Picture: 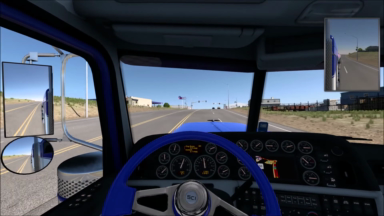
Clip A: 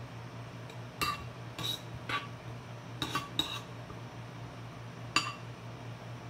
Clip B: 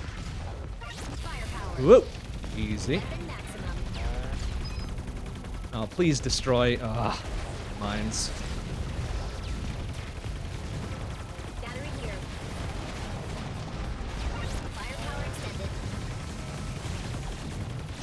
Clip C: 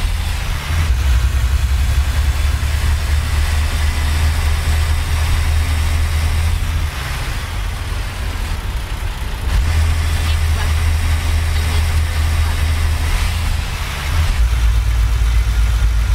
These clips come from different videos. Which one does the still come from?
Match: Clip C